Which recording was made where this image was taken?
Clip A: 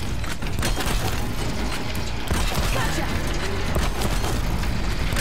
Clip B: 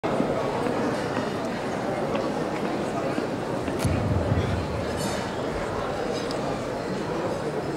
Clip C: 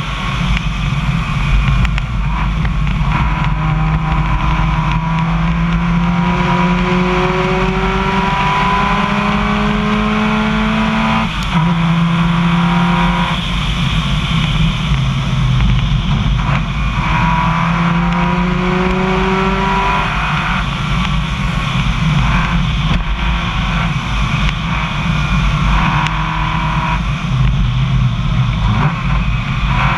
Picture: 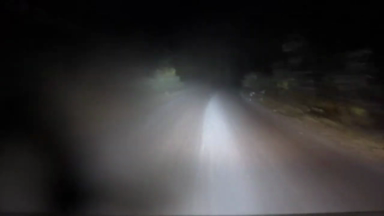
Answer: C